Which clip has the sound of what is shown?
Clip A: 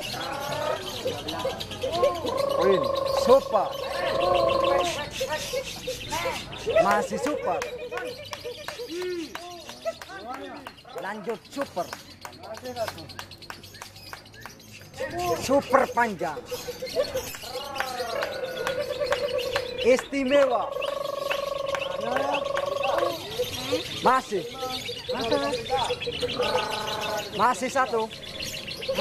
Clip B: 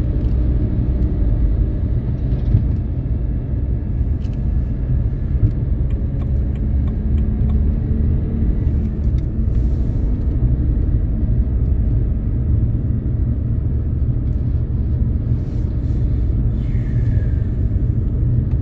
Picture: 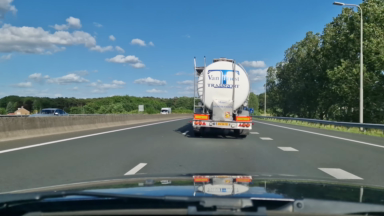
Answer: B